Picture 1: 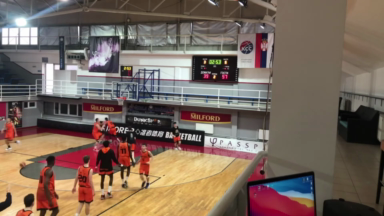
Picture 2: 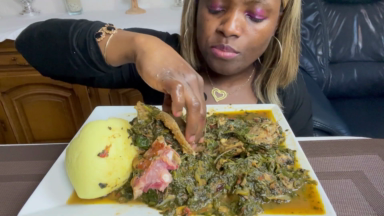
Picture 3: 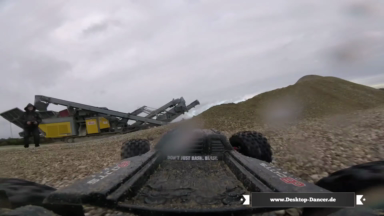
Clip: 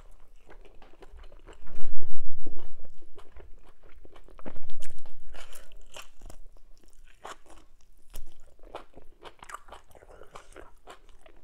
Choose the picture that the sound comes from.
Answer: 2